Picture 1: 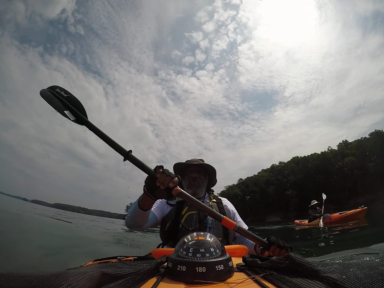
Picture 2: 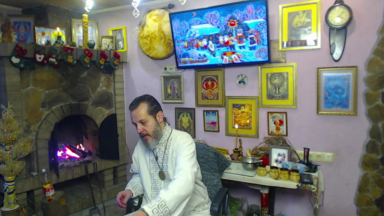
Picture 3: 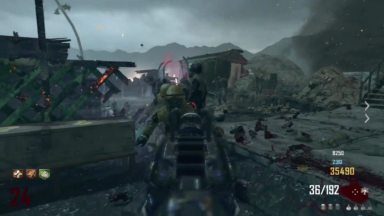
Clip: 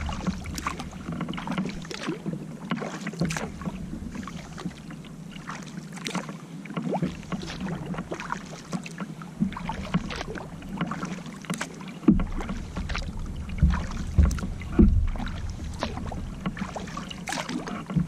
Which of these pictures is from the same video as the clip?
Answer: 1